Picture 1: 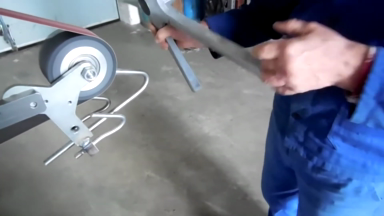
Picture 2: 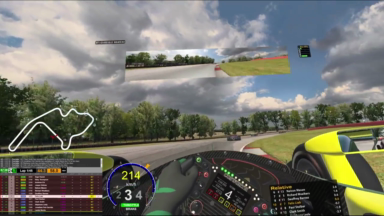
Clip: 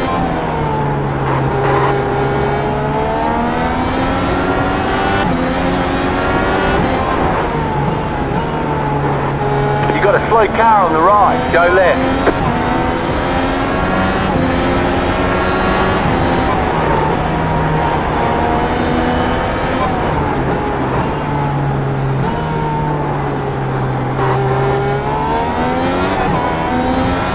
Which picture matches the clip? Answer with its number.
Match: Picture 2